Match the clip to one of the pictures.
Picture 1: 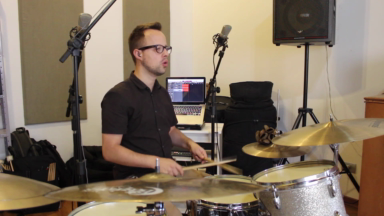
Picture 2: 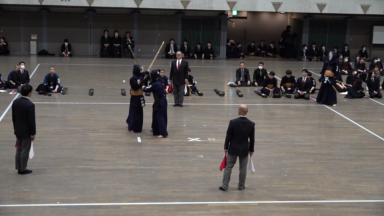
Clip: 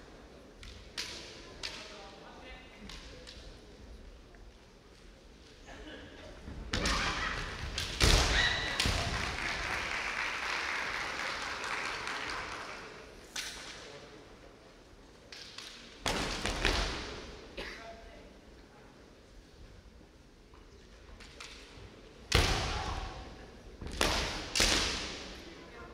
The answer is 2